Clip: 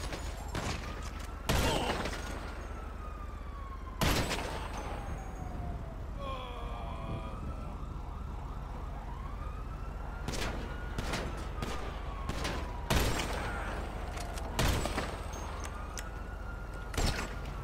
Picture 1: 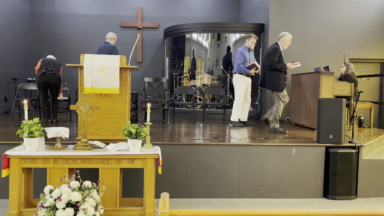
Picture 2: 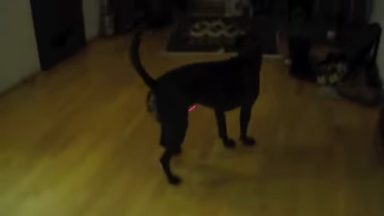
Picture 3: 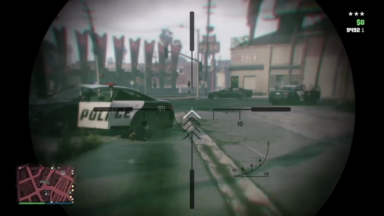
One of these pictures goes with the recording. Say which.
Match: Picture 3